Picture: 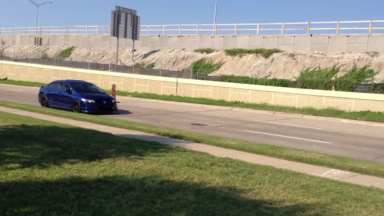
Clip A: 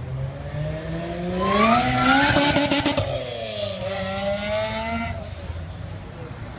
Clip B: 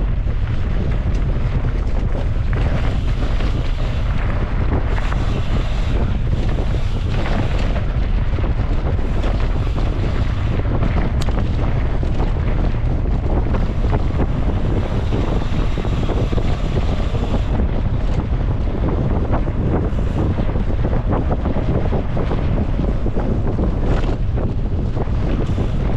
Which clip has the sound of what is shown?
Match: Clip A